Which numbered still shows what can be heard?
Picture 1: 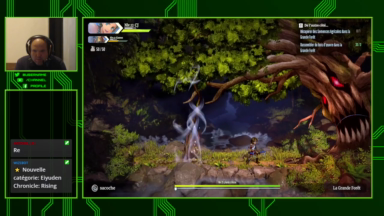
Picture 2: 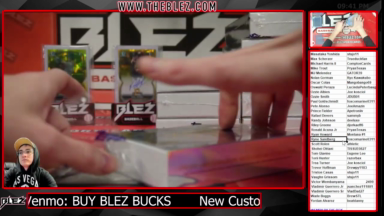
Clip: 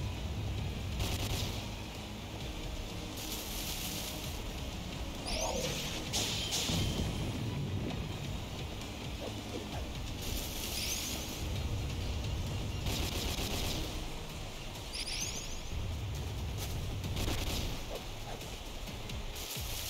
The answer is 1